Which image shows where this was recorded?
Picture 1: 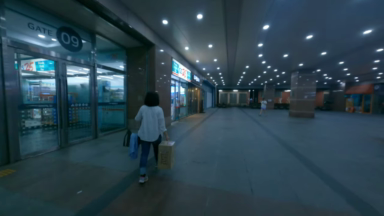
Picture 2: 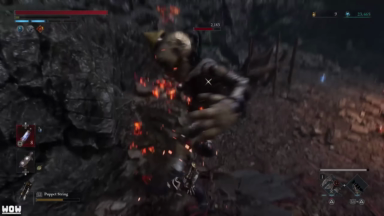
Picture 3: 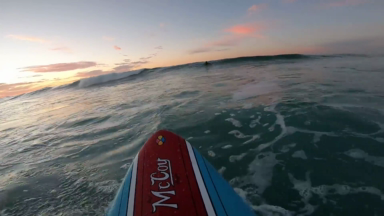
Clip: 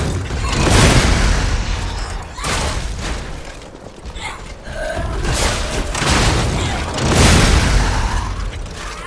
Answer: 2